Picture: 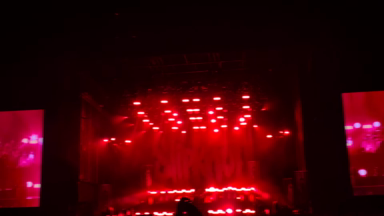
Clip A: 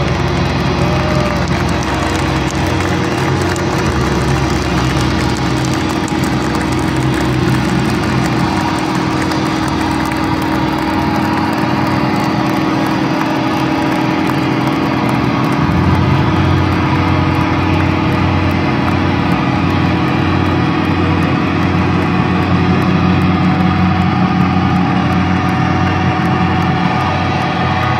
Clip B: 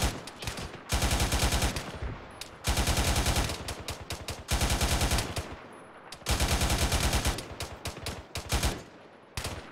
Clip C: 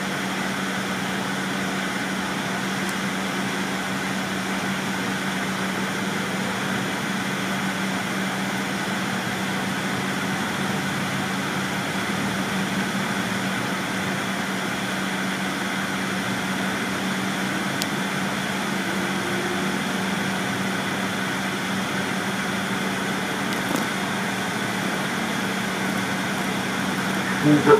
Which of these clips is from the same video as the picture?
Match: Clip A